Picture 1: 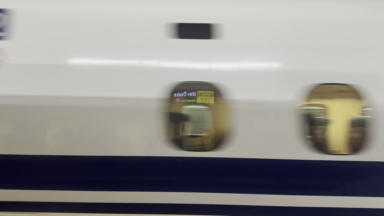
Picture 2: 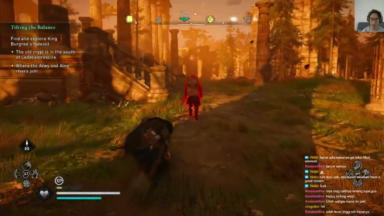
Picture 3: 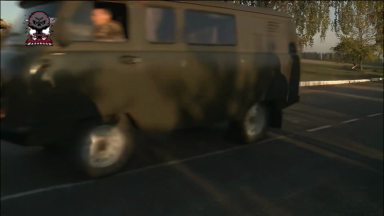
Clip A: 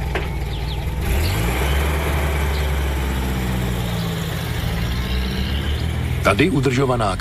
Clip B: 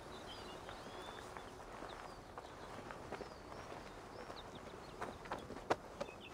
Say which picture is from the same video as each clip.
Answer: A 3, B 2